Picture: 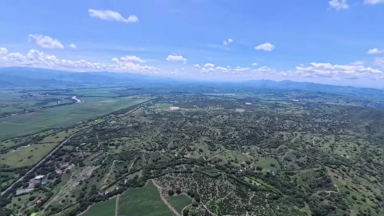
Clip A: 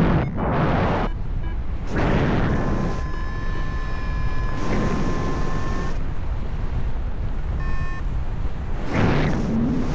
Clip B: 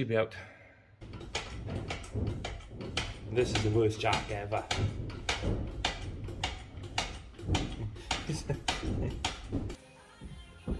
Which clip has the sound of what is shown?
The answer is A